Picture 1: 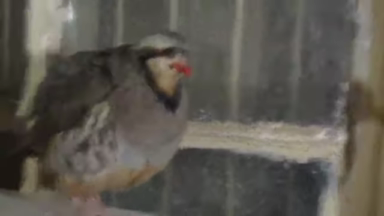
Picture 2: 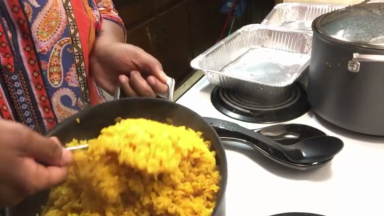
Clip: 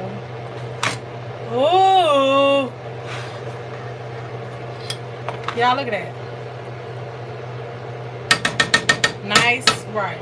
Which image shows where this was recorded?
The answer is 2